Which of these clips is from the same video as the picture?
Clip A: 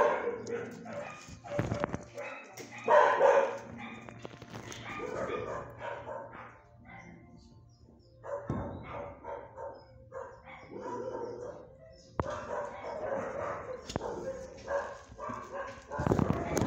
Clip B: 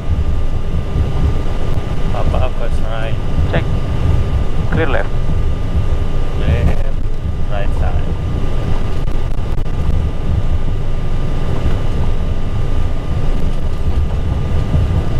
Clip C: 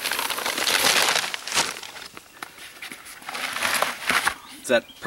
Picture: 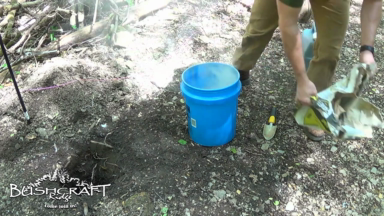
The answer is C